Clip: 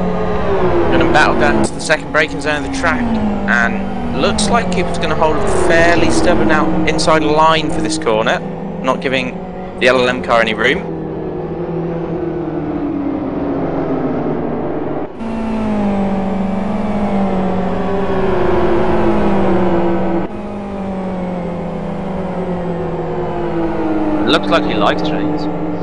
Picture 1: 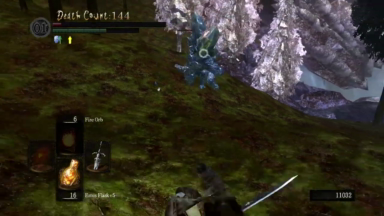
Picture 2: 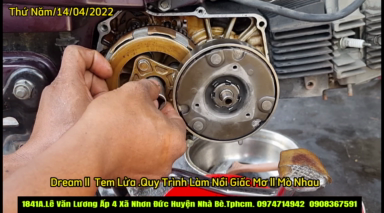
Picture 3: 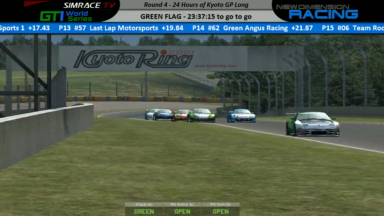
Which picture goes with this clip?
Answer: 3